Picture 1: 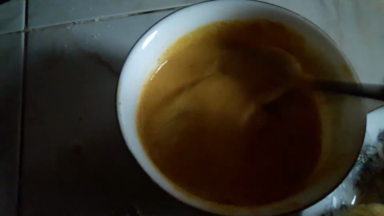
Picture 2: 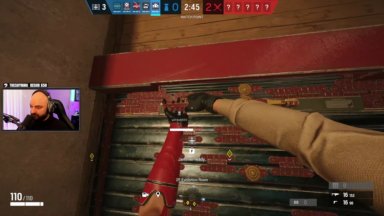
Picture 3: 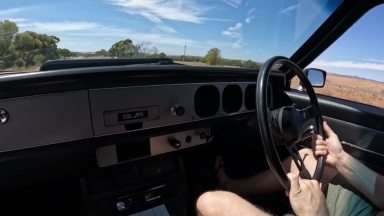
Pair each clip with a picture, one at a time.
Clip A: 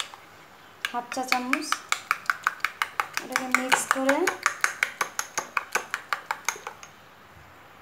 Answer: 1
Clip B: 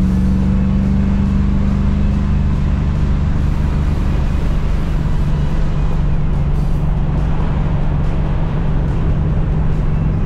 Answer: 3